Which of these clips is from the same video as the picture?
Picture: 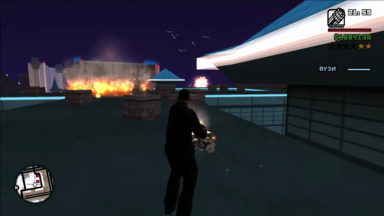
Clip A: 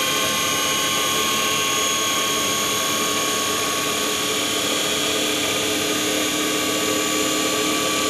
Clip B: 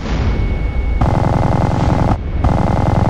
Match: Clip B